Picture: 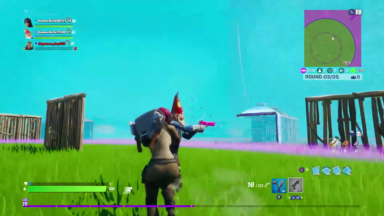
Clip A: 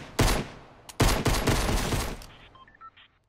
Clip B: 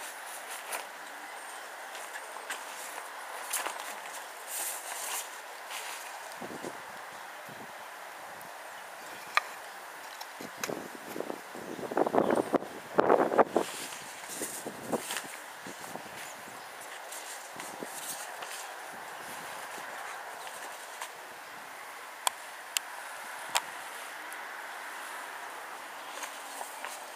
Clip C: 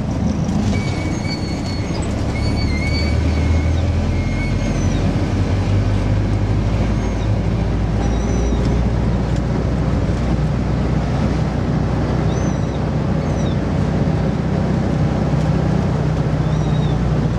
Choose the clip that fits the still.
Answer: A